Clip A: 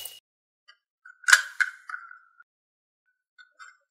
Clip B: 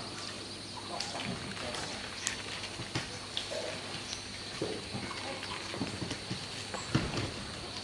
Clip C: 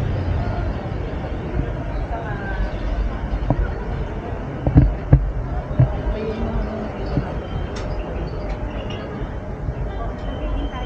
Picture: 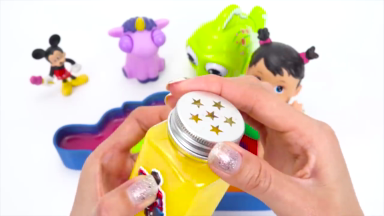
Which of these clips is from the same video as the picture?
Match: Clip A